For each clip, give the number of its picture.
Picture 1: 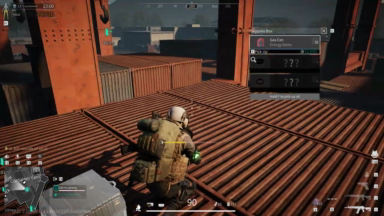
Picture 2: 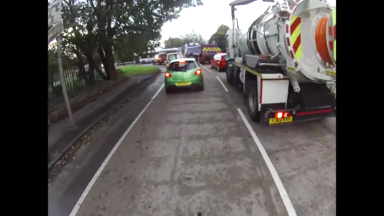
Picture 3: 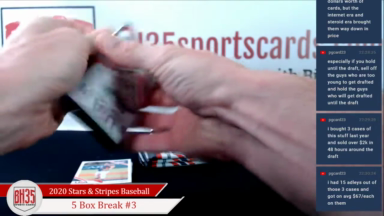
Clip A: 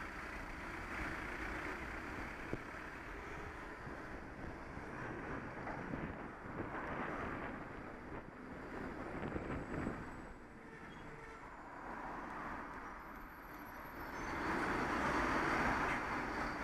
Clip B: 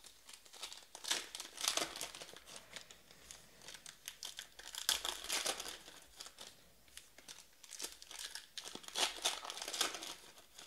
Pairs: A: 2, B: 3